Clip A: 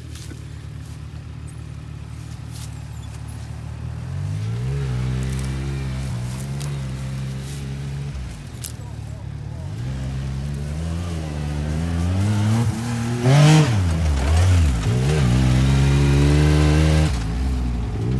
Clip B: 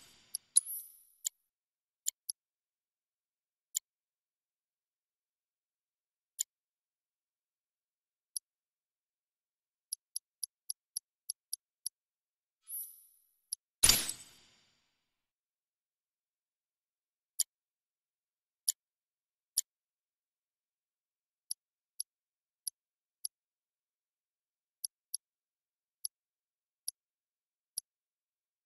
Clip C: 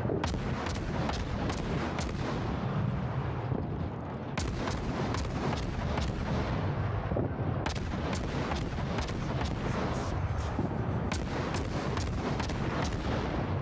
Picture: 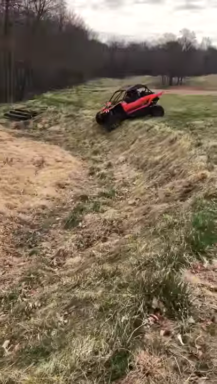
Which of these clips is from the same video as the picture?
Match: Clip A